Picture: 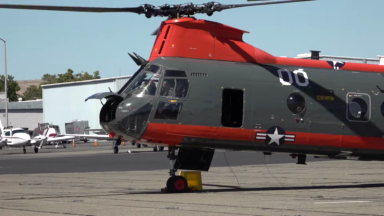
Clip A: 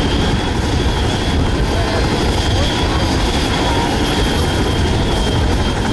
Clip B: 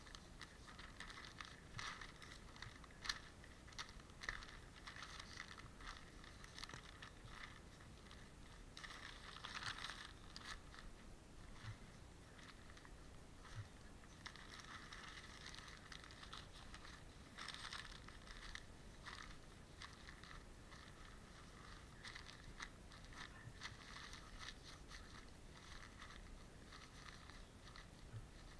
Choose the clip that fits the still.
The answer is A